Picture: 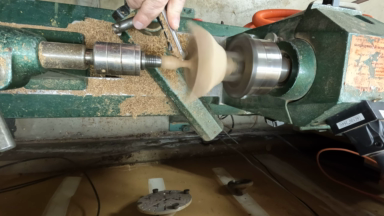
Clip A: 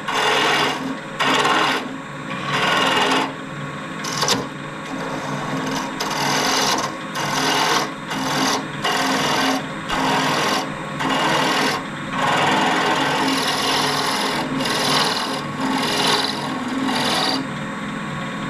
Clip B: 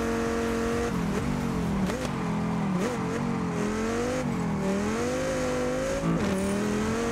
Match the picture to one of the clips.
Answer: A